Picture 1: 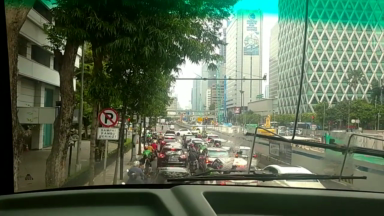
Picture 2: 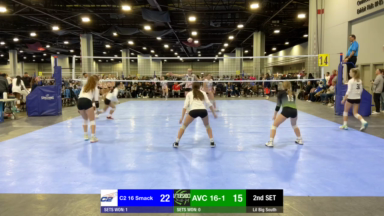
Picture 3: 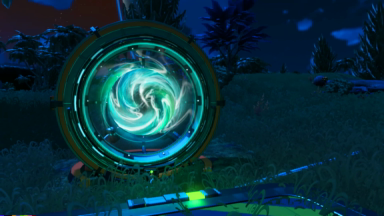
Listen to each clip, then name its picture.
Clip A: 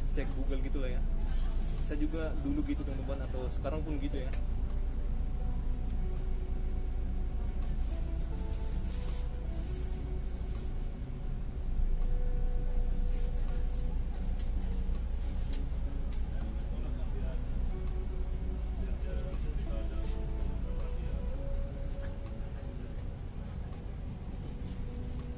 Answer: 1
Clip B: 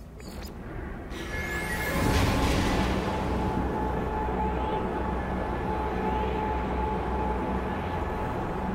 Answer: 3